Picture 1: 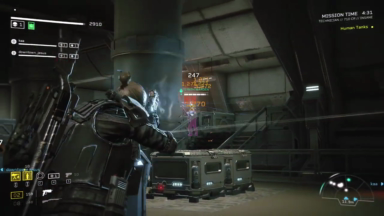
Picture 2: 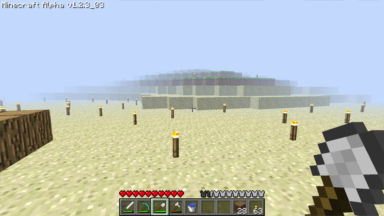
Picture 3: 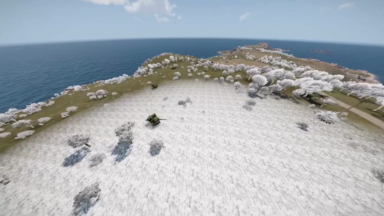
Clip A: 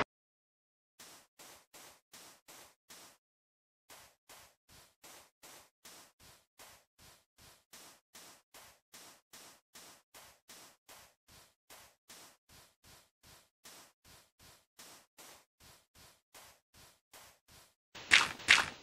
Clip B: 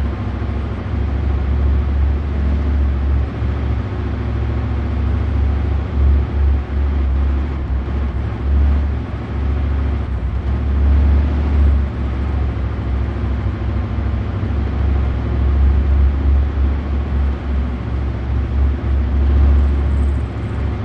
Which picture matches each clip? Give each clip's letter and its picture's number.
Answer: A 2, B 3